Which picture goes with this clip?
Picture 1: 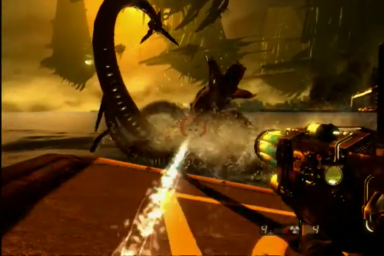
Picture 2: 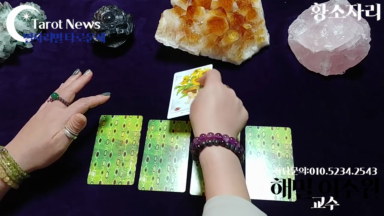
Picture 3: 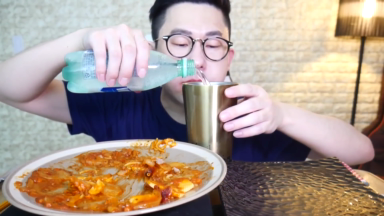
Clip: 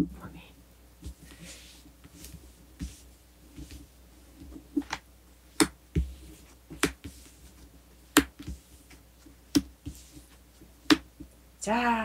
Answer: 2